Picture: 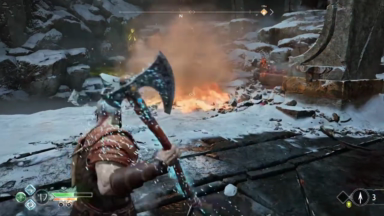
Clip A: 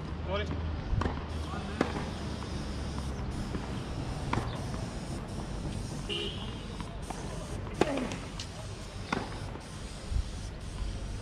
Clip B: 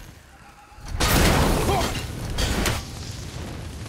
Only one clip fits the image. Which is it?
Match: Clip B